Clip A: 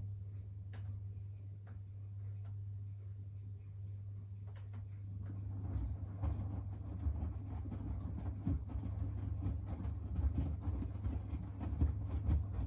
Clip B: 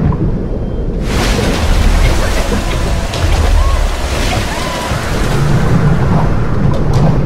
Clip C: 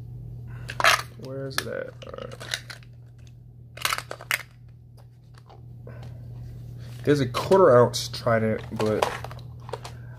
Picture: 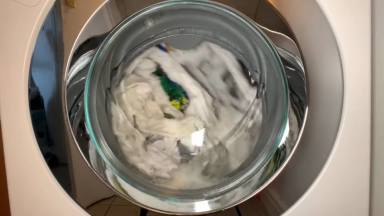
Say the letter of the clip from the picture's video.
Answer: A